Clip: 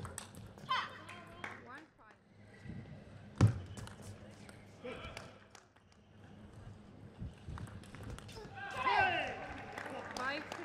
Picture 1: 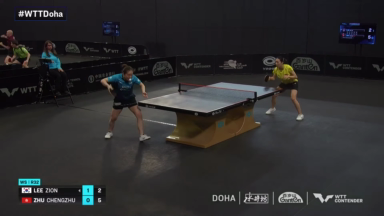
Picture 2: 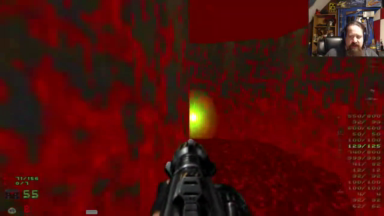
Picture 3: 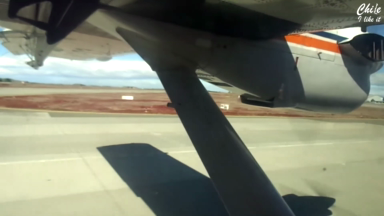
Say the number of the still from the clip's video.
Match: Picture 1